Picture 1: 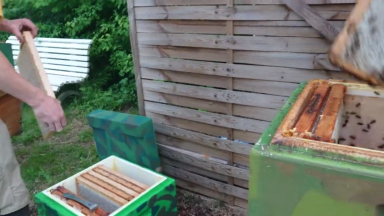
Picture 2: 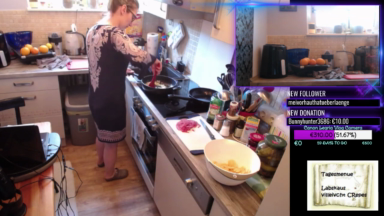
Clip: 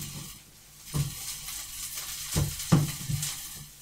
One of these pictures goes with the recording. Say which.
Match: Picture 2